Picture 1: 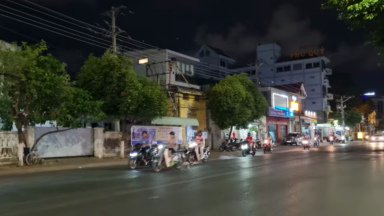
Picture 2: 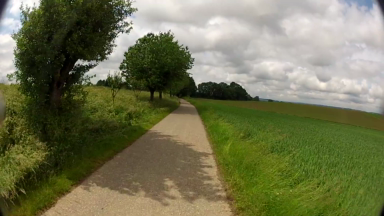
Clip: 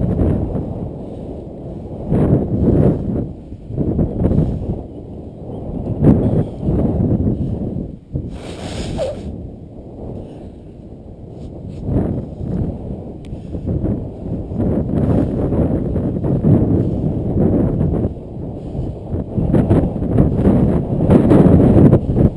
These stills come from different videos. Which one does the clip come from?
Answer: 2